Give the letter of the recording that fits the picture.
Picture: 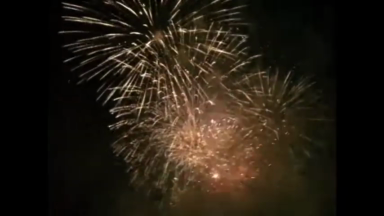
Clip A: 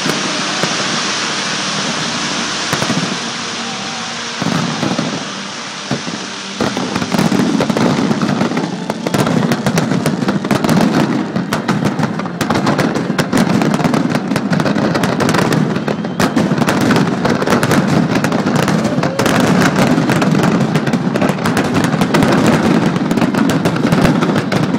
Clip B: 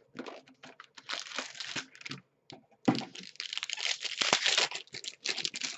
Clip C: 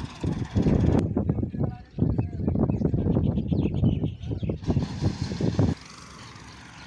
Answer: A